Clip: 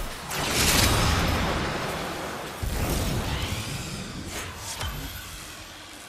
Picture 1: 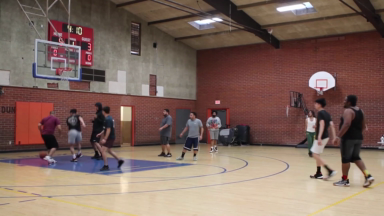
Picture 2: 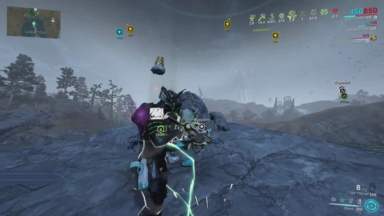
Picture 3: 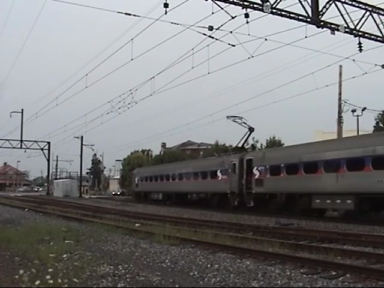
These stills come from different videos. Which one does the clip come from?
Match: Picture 2